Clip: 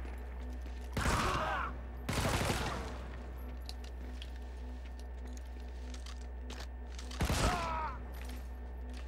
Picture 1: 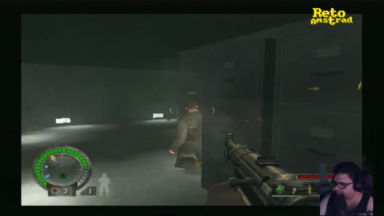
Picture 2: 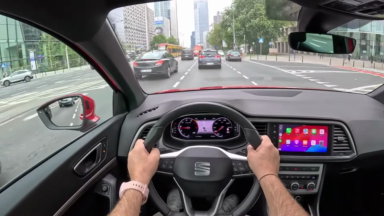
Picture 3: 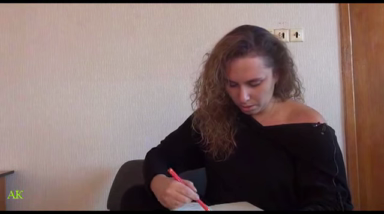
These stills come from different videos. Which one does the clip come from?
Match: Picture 1